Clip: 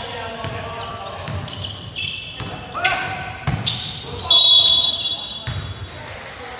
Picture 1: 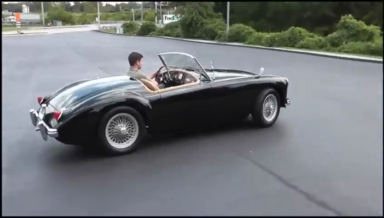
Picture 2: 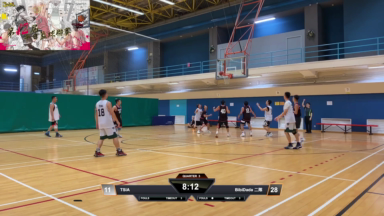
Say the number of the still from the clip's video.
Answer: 2